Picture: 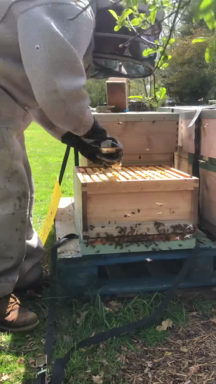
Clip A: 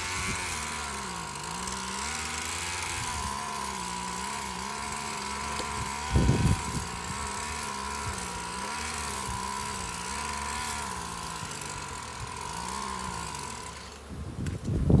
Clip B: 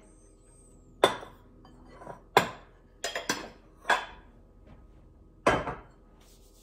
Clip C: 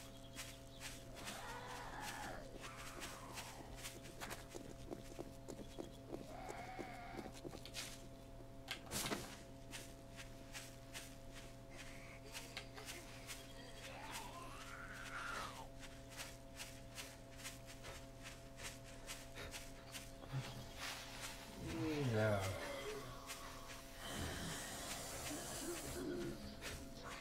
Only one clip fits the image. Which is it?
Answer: A